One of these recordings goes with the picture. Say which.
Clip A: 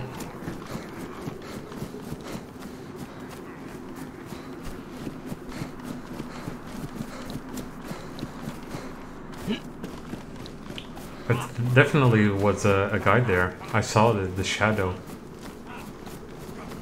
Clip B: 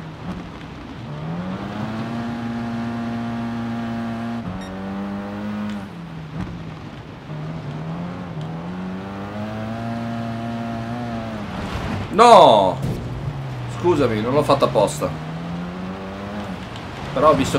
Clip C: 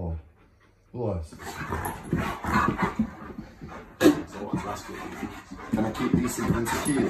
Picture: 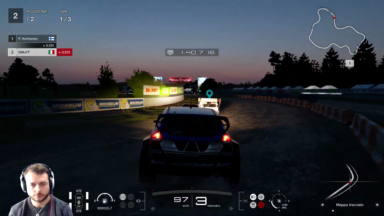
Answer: B